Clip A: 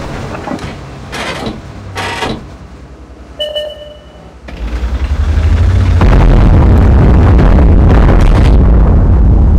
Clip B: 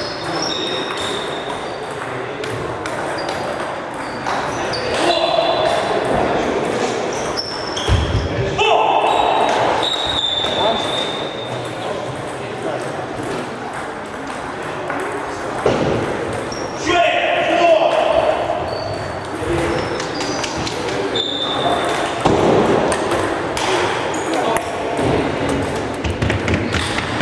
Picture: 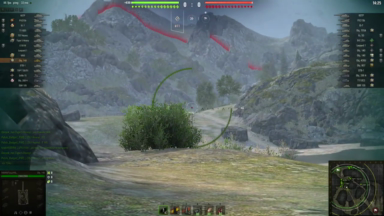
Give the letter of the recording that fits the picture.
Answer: A